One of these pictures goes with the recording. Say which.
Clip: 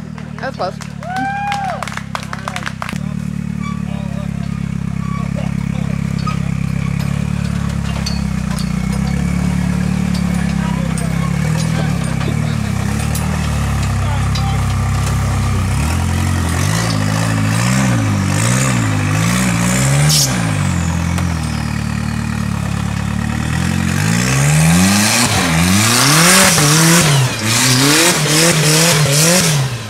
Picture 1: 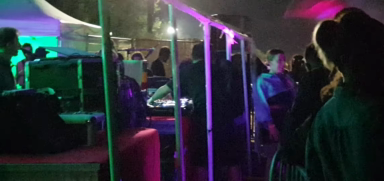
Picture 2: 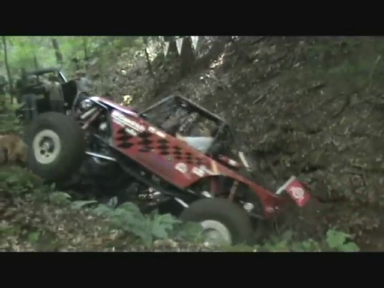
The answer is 2